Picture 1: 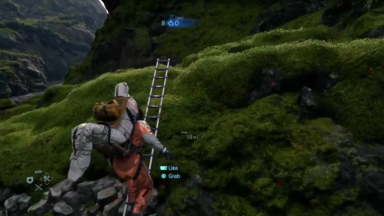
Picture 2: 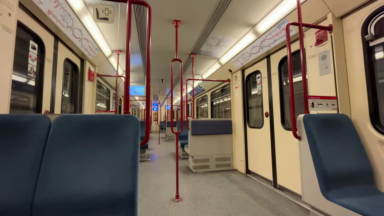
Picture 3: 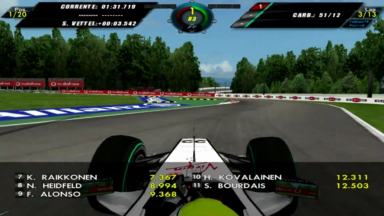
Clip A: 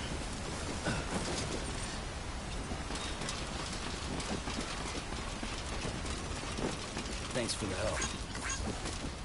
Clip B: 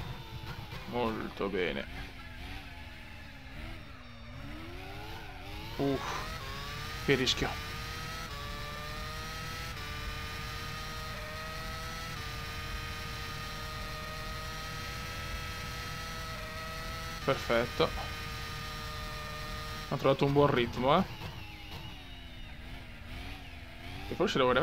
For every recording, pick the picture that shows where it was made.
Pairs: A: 1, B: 3